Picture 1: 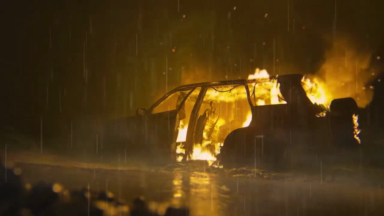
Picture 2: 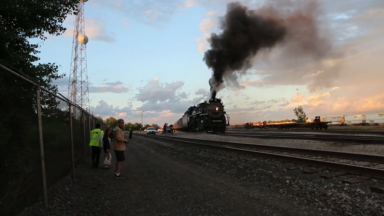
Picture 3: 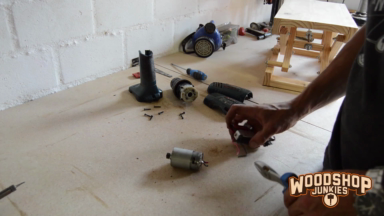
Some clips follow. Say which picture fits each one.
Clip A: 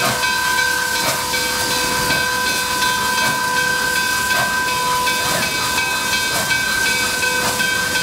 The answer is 2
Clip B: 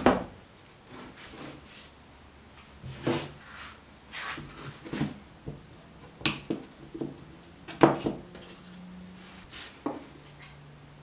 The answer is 3